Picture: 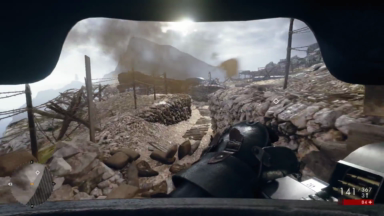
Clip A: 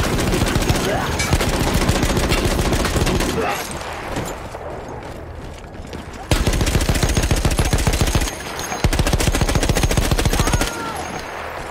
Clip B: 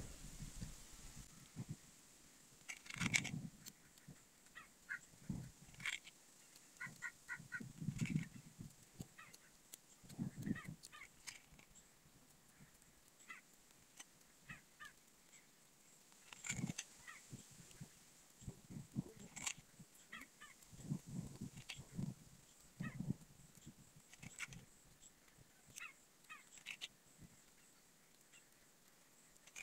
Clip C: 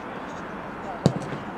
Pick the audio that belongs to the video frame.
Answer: A